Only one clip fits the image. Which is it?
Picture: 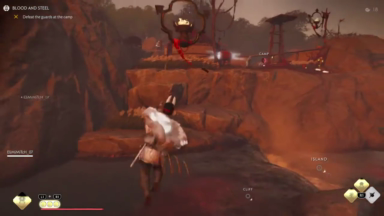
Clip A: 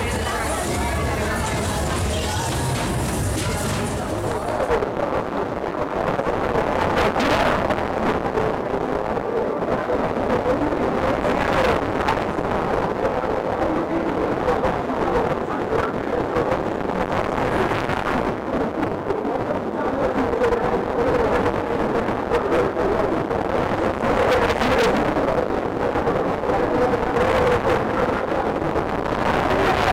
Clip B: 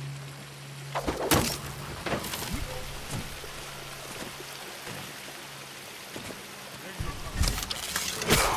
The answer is B